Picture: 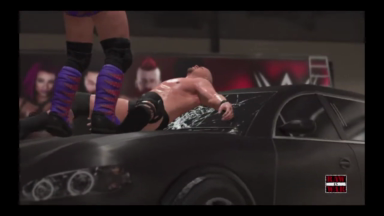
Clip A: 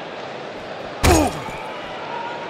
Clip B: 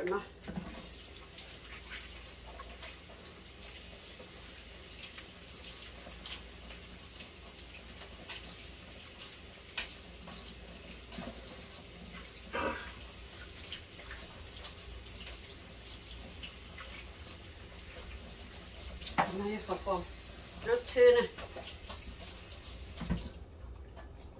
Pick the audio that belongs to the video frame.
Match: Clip A